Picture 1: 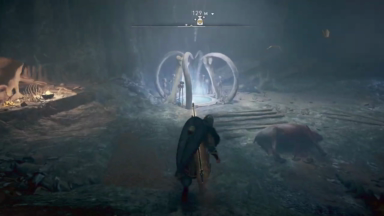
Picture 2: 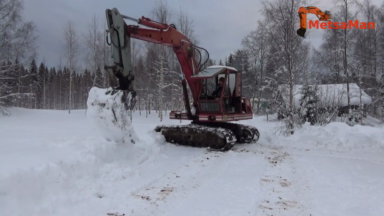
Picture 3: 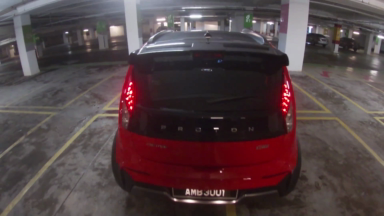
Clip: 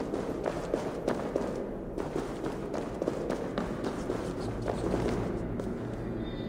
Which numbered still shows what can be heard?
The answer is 1